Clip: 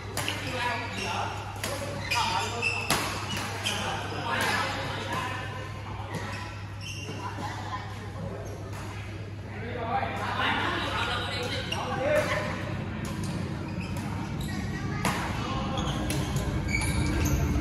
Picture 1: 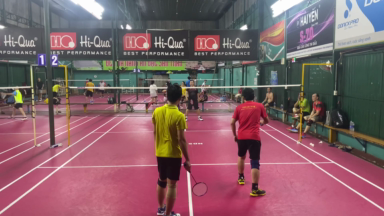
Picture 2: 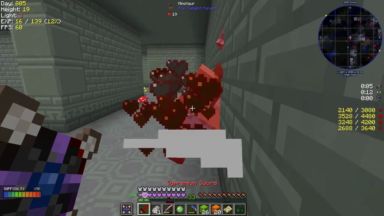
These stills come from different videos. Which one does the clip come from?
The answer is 1